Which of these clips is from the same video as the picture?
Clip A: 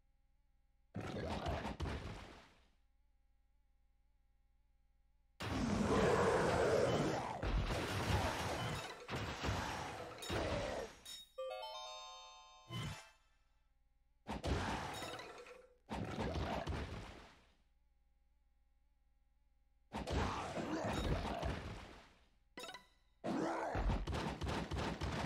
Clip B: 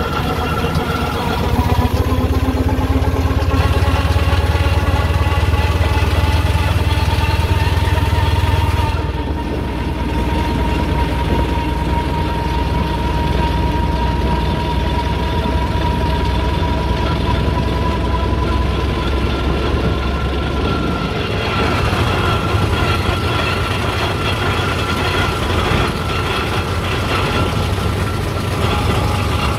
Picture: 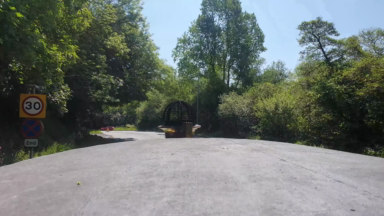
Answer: B